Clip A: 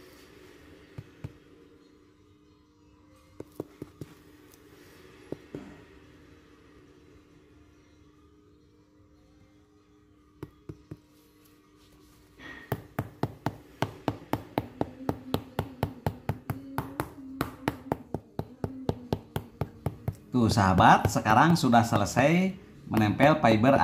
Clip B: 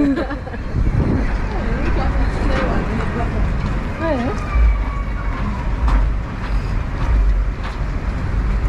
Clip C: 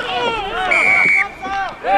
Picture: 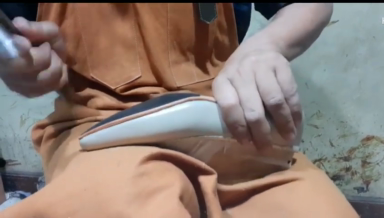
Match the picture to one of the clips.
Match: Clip A